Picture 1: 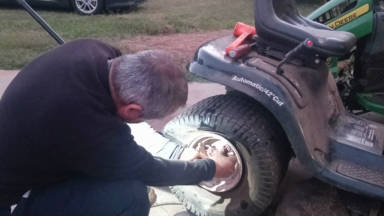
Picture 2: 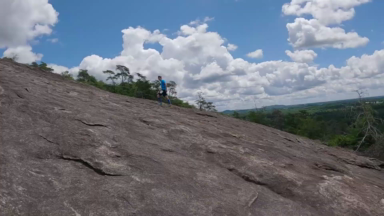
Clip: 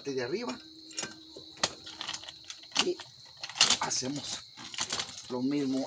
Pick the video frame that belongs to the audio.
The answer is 1